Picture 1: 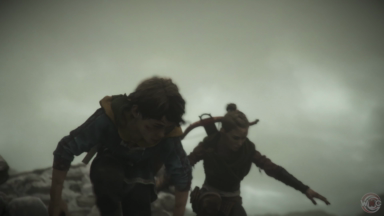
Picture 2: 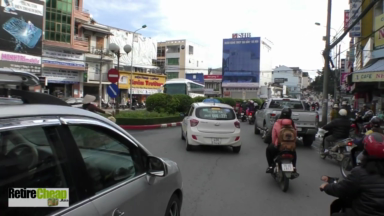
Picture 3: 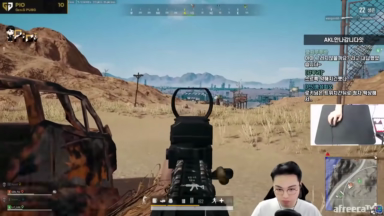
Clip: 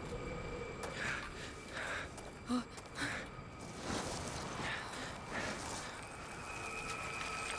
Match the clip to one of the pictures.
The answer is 1